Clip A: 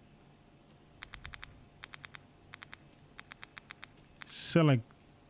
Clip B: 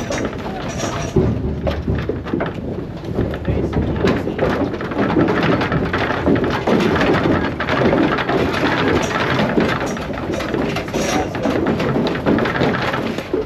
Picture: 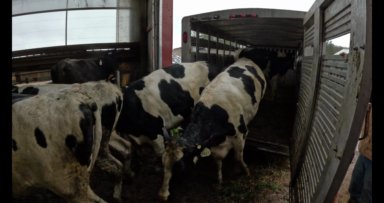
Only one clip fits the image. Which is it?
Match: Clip B